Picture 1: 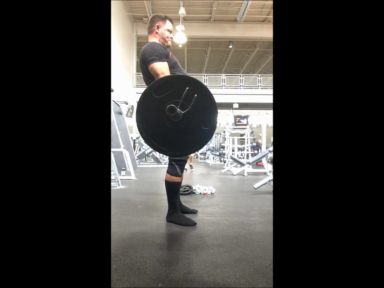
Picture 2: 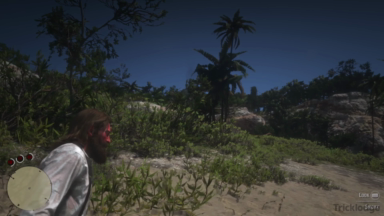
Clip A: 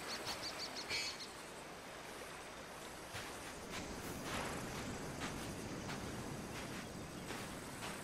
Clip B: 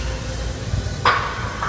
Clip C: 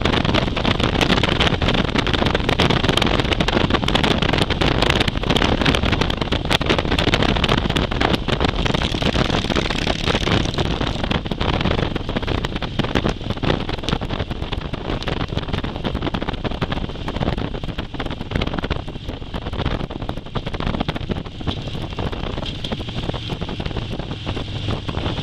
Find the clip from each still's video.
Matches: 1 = B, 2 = A